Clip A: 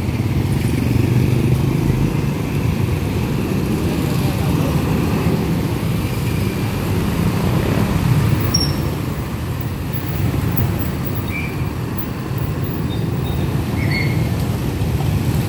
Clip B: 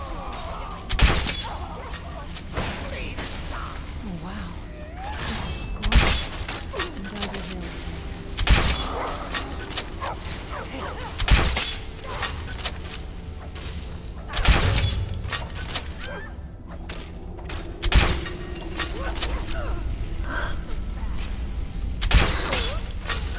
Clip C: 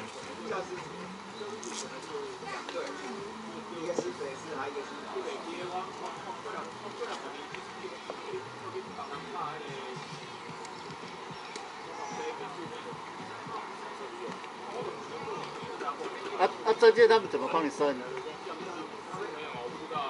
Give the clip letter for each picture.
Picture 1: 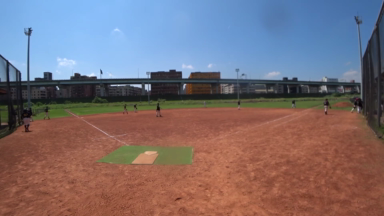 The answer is C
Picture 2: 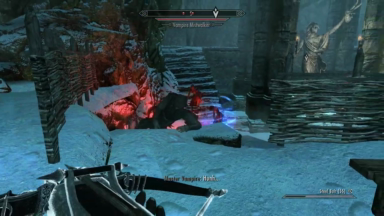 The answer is B